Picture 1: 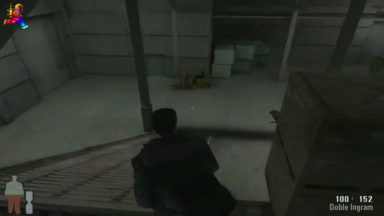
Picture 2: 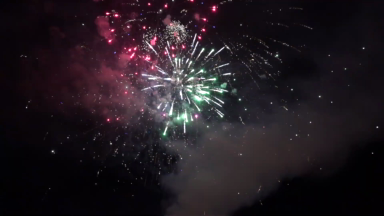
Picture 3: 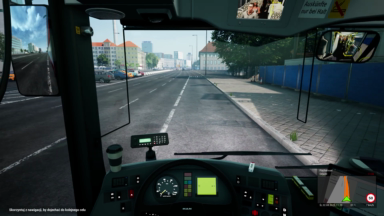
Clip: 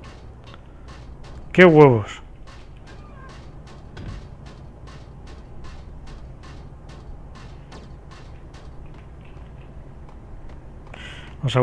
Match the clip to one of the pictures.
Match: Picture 1